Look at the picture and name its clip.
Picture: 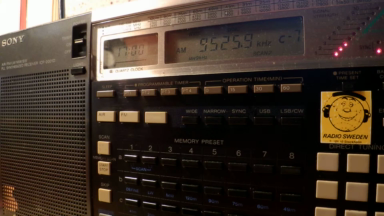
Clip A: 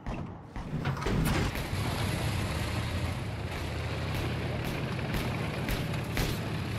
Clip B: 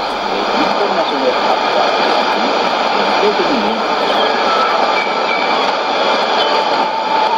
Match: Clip B